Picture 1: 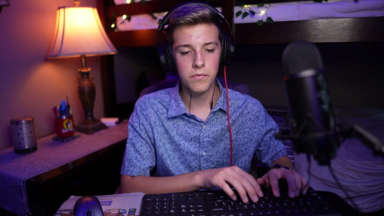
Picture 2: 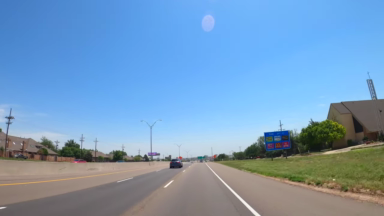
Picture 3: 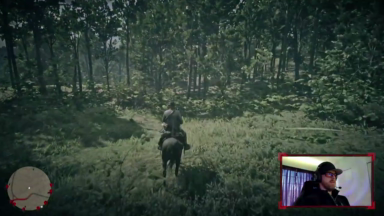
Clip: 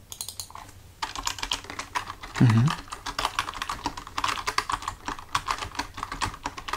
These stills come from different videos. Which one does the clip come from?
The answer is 1